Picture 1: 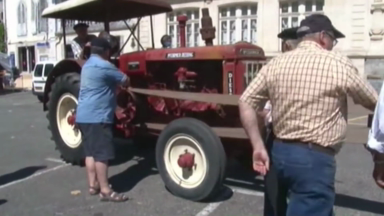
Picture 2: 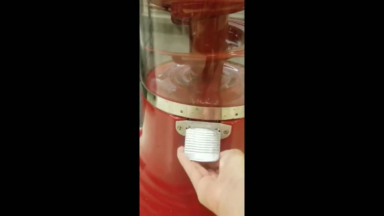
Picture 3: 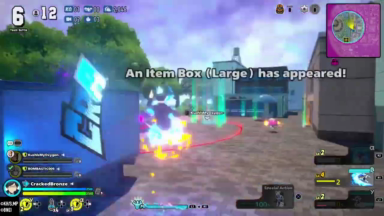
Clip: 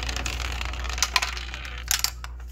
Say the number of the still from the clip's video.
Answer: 2